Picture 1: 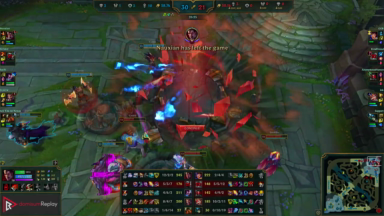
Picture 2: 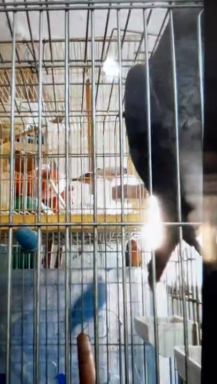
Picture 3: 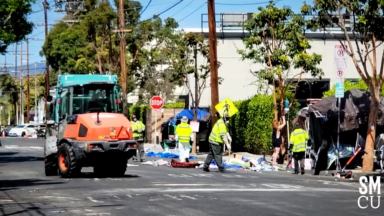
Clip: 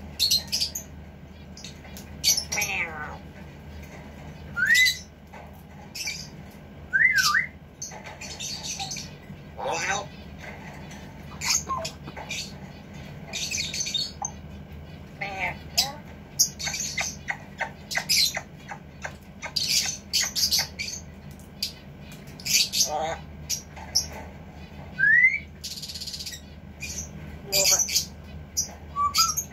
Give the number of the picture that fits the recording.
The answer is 2